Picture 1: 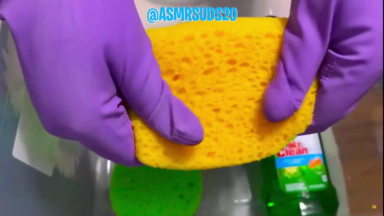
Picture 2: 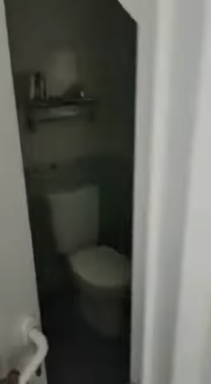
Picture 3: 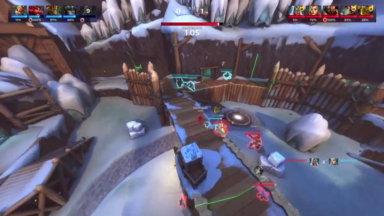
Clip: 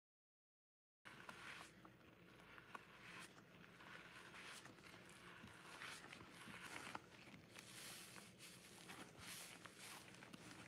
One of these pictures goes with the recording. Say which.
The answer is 1